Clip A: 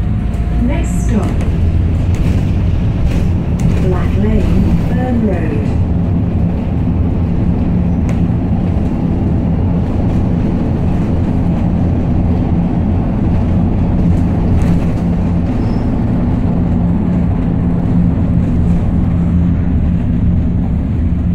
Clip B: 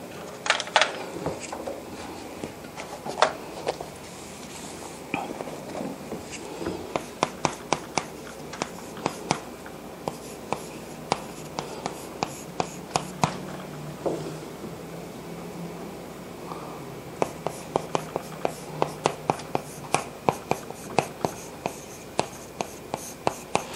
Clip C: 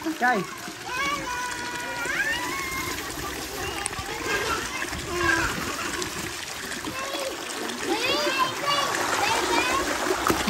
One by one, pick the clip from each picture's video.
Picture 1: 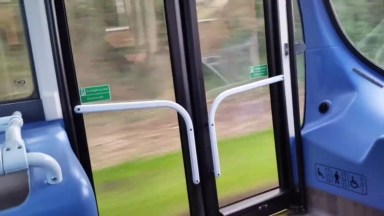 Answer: A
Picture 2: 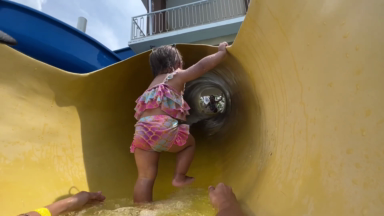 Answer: C